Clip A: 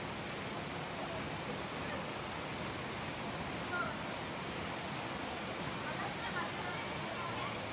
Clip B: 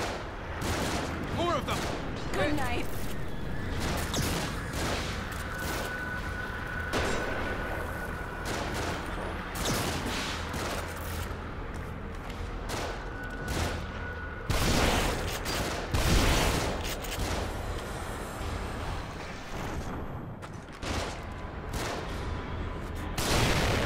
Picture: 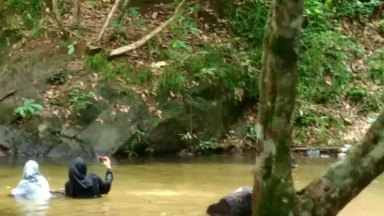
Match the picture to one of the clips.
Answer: A